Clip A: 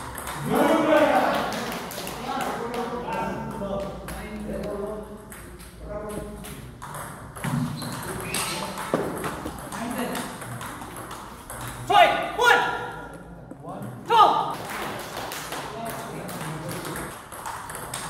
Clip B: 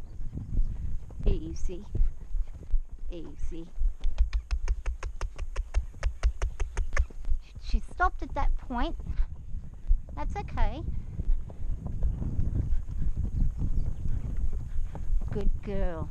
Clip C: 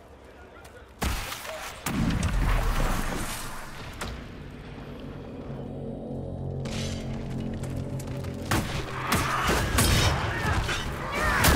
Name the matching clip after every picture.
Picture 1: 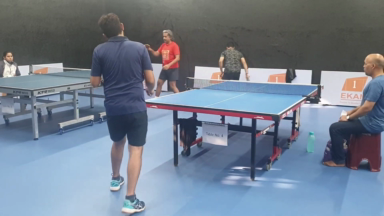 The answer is A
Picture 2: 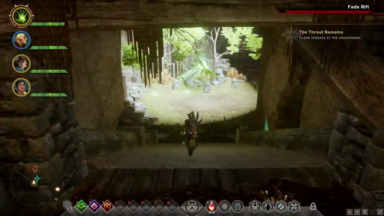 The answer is C